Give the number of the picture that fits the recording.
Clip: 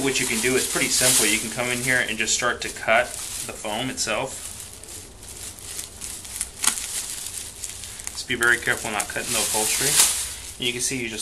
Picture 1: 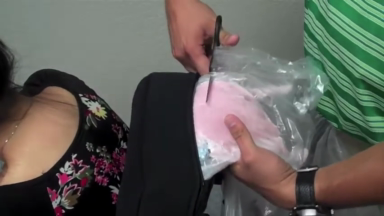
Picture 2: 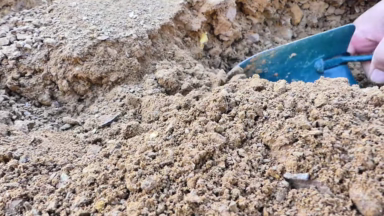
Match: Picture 1